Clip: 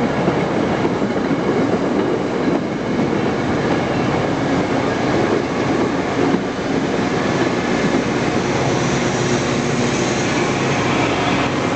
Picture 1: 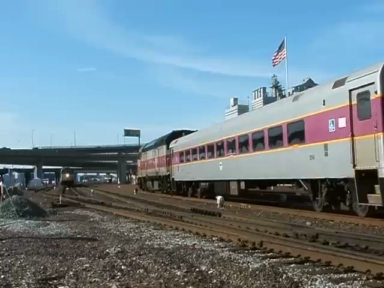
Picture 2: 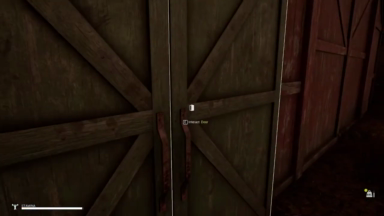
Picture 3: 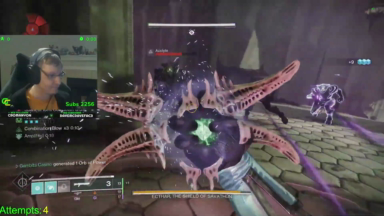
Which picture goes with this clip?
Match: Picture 1